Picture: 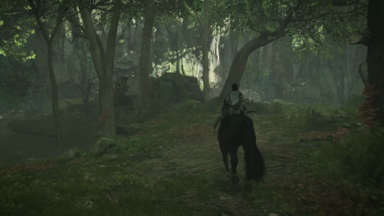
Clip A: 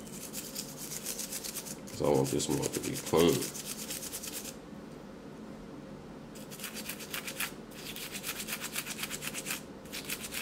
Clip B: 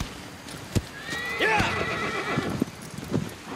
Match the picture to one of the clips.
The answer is B